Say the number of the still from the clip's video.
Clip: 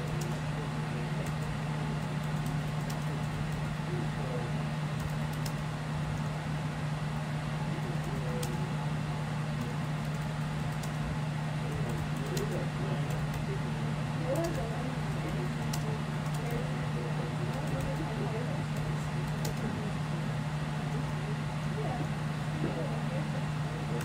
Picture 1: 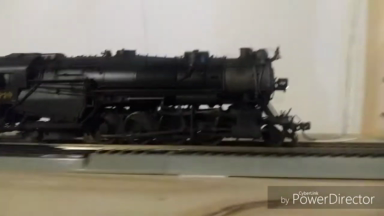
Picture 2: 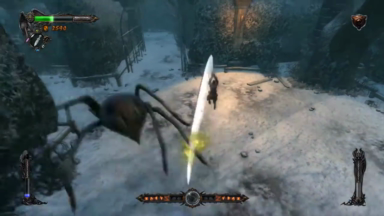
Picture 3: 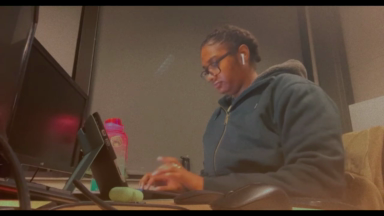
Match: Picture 3